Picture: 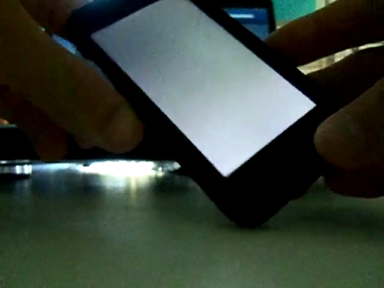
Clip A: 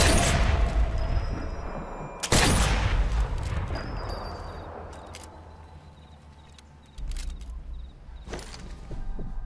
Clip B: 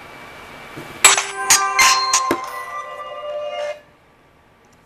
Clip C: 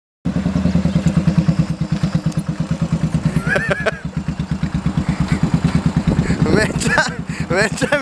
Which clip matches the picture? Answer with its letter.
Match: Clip B